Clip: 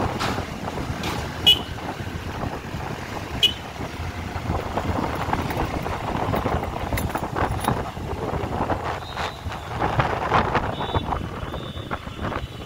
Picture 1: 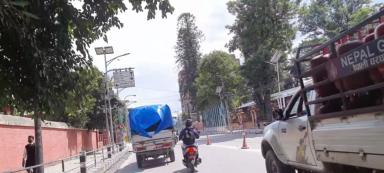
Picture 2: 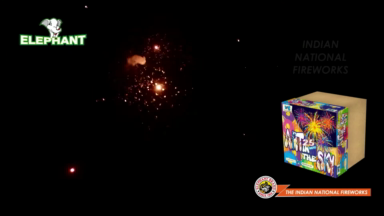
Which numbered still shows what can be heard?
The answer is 1